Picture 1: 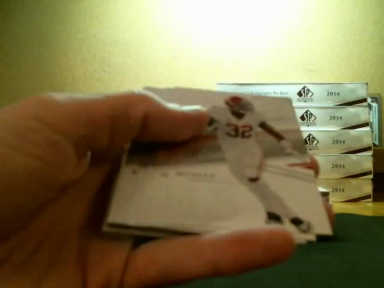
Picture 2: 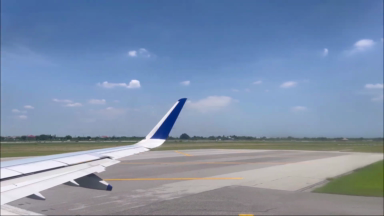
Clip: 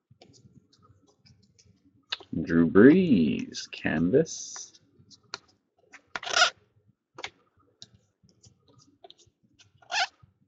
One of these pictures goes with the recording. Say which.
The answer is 1